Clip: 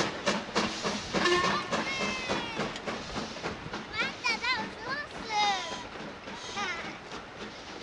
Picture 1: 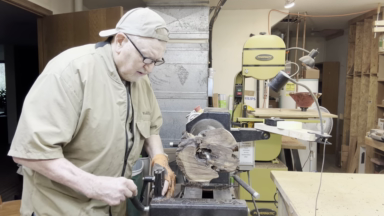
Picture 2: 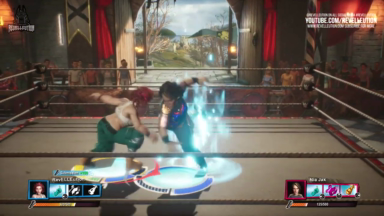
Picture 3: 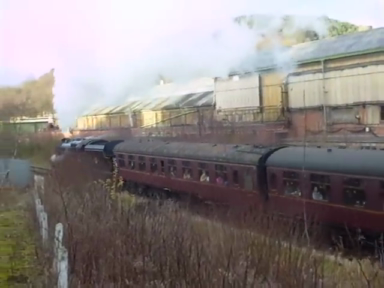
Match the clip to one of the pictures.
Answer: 3